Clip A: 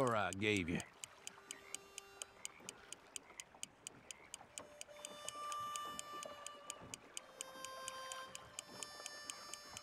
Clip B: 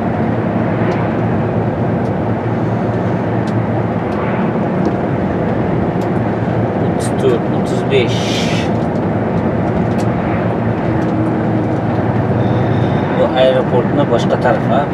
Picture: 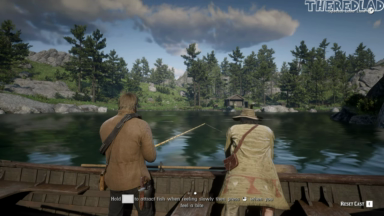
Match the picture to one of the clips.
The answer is A